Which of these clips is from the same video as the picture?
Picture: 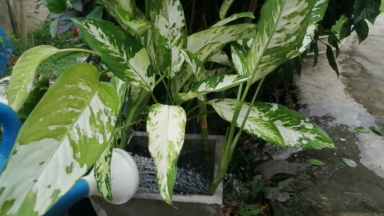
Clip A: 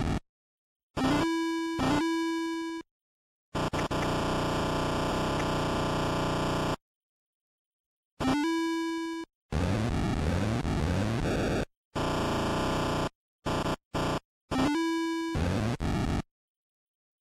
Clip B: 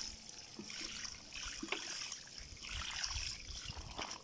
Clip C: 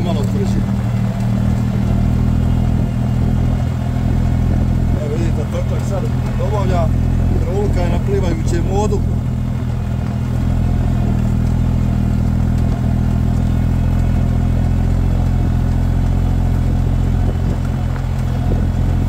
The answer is B